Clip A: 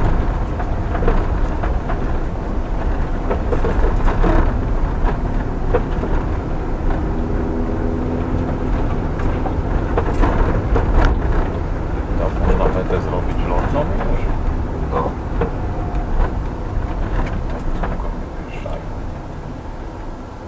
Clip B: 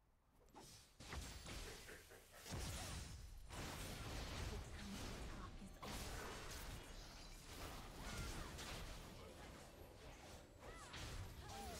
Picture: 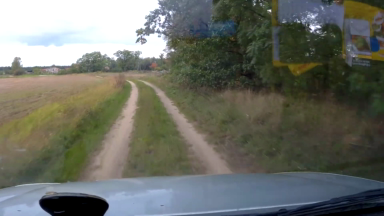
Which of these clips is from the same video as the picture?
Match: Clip A